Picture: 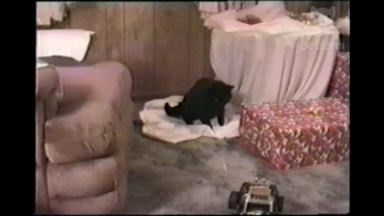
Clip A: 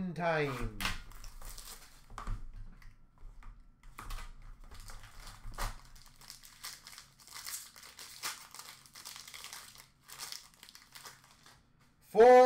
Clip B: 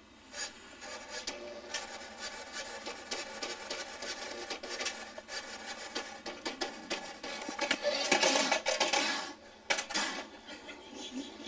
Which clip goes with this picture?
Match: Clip B